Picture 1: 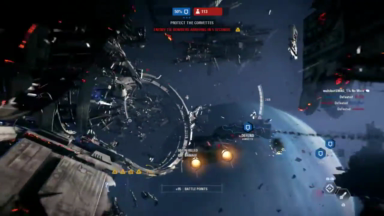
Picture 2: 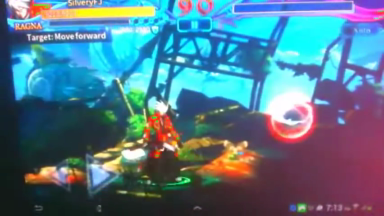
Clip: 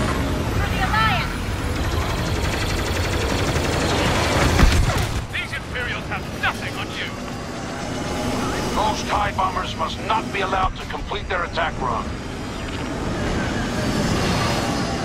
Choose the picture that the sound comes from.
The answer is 1